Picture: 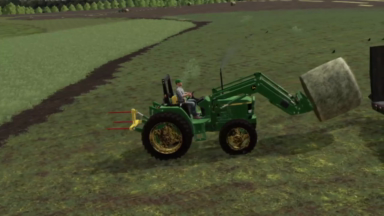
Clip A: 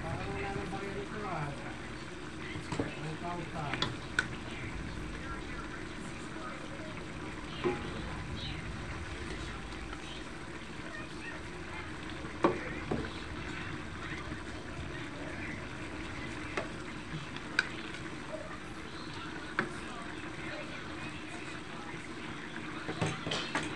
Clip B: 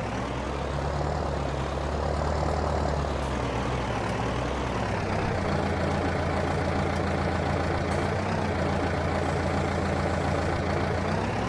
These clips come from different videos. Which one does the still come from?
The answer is B